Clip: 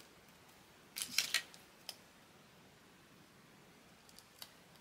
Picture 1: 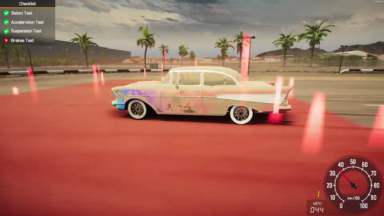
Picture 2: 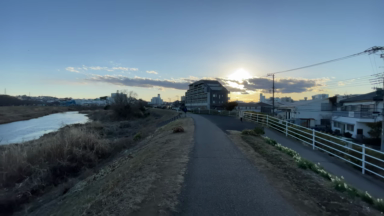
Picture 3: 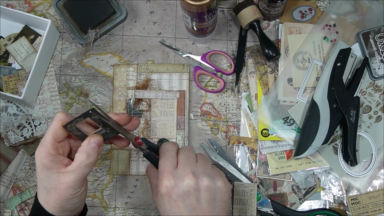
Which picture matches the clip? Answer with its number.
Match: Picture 3